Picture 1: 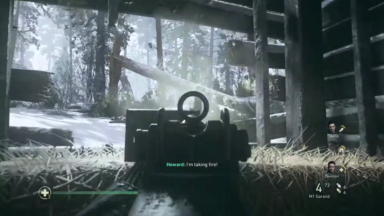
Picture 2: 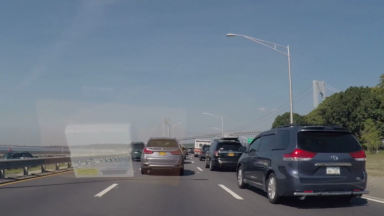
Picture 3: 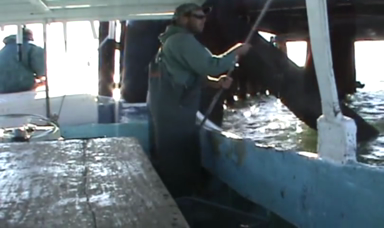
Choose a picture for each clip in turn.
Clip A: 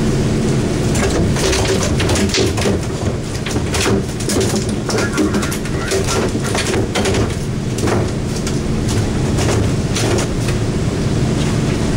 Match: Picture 3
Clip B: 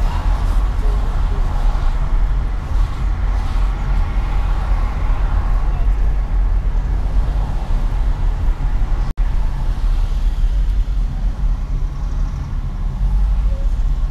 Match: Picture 2